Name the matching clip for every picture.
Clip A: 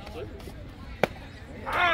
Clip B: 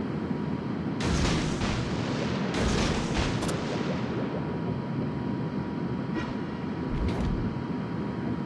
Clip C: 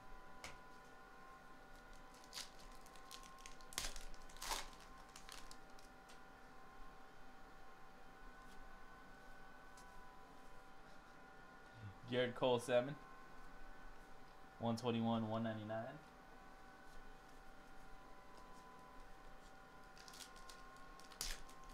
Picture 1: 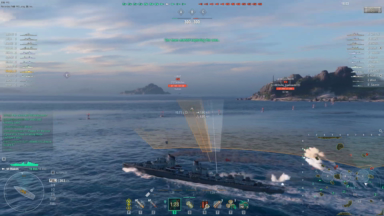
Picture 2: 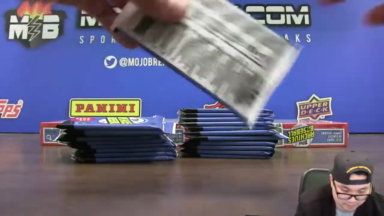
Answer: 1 B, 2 C